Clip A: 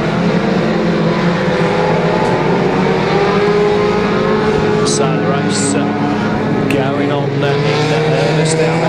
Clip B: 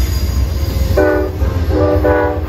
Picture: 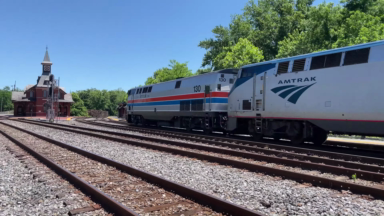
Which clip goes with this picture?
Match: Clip B